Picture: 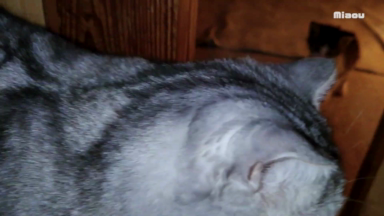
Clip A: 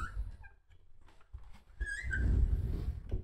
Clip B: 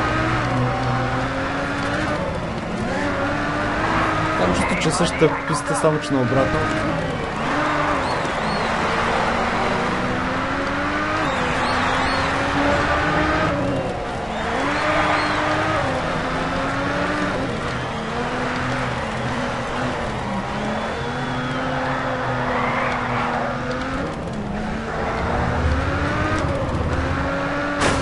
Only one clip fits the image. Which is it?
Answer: A